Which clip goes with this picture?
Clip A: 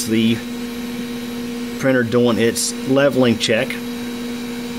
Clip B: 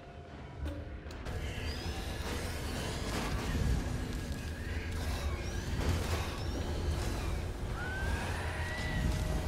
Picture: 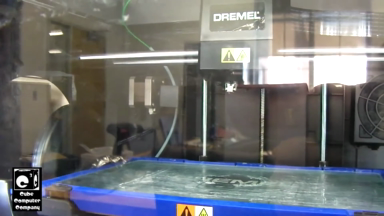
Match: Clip A